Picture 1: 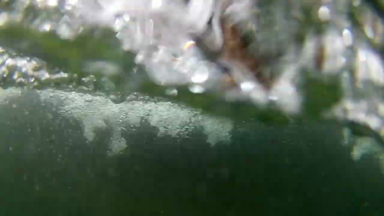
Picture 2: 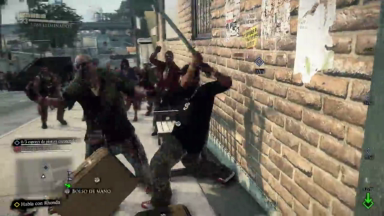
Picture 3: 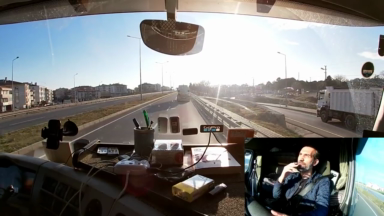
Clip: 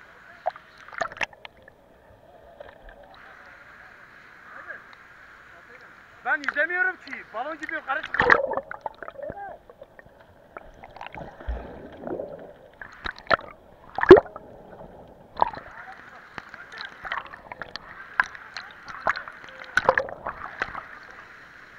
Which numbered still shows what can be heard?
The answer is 1